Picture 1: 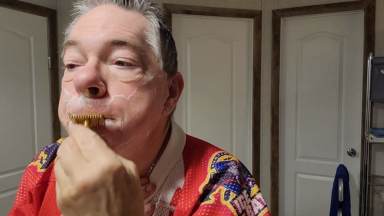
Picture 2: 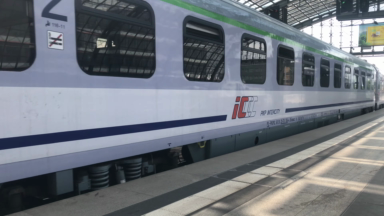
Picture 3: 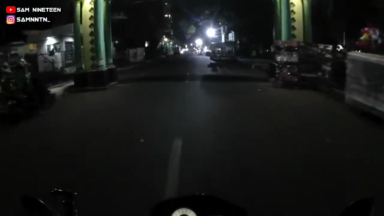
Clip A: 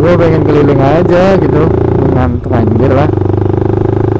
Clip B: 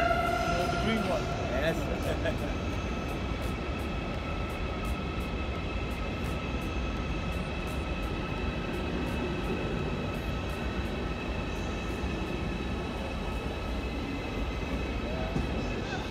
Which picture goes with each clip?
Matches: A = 3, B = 2